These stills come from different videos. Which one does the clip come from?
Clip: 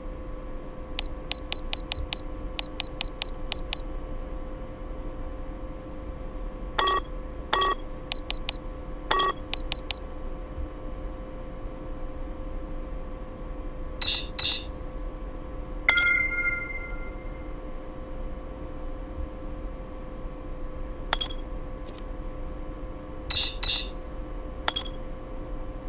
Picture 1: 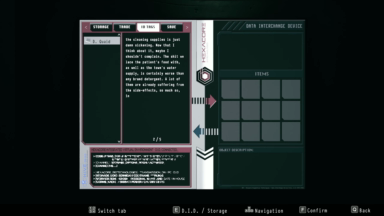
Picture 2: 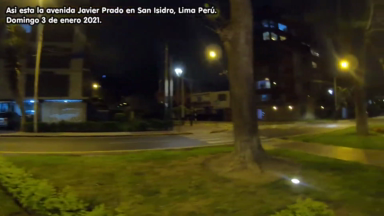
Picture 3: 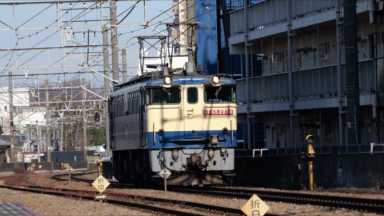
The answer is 1